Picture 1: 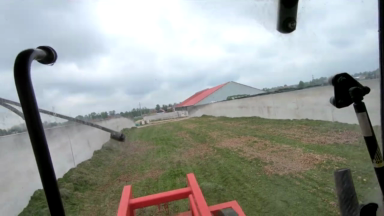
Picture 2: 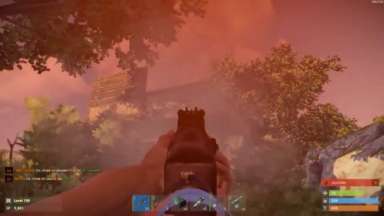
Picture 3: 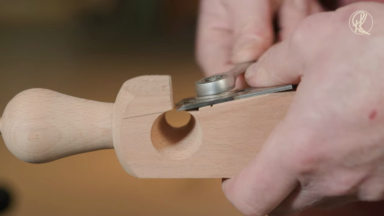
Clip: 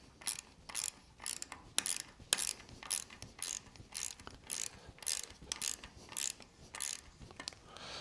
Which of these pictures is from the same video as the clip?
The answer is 3